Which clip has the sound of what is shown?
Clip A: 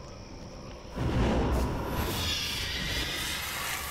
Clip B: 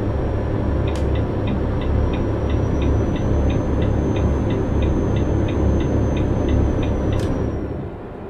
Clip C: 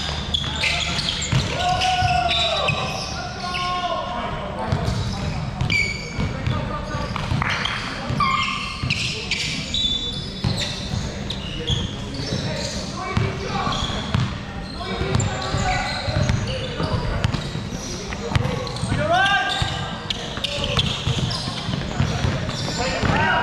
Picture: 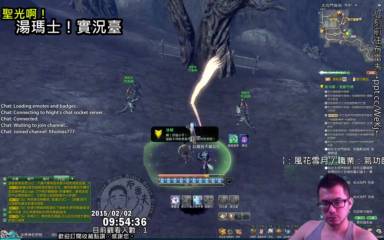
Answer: A